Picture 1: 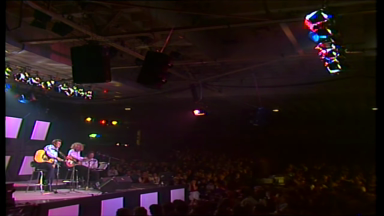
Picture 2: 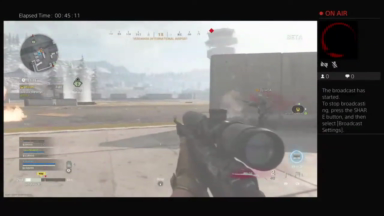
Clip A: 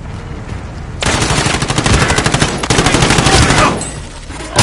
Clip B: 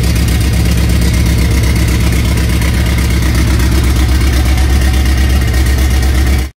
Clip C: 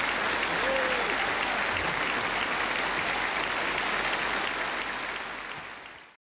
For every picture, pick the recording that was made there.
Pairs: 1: C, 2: A